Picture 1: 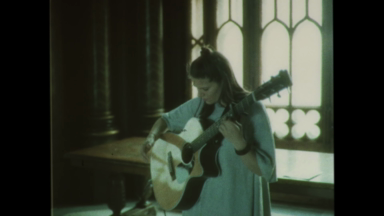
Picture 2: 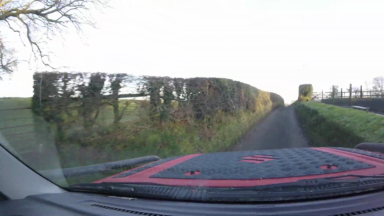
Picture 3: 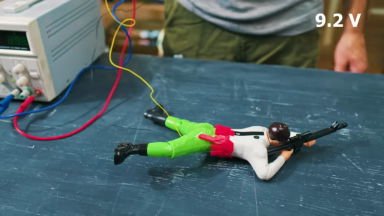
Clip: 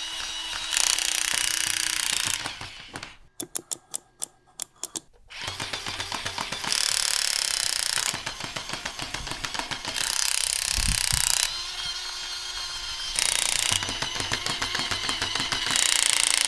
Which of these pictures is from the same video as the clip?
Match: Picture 3